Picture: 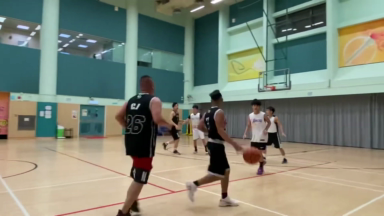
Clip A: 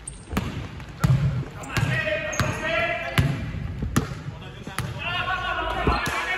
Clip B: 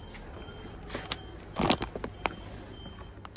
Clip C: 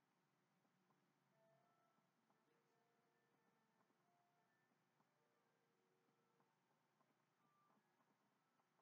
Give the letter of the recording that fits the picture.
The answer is A